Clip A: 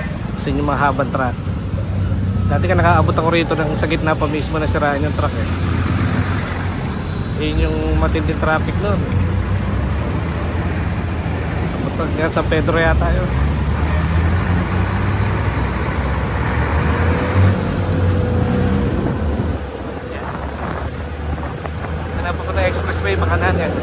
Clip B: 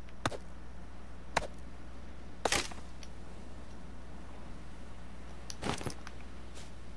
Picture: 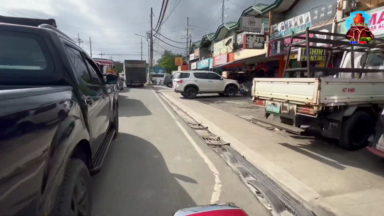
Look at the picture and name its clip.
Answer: A